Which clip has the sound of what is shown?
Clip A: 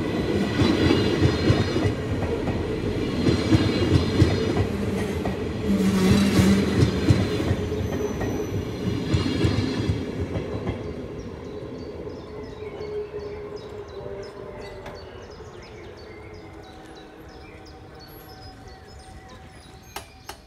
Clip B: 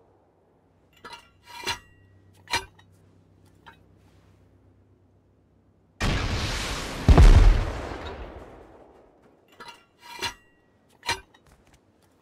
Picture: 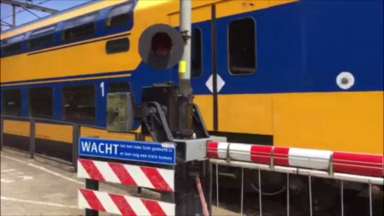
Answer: A